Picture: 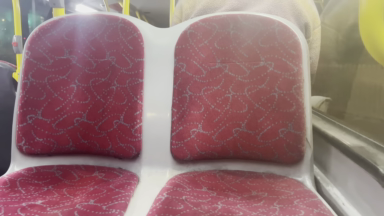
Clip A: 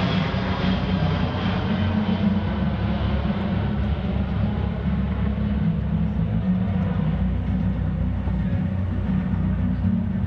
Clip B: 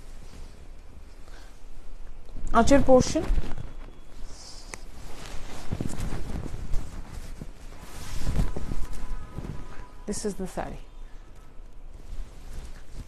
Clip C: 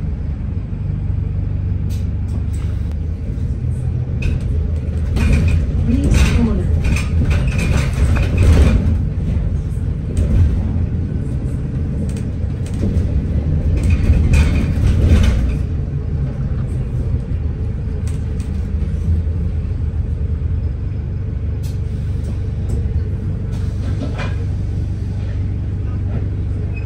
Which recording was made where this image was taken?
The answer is C